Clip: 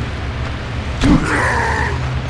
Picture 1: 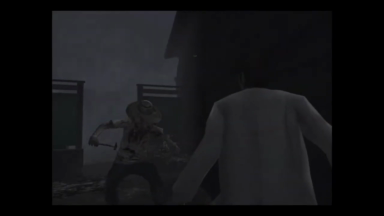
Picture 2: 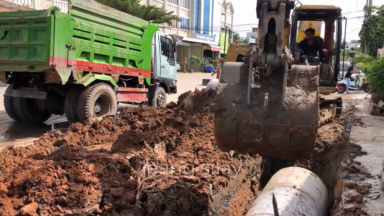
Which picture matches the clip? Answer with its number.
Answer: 1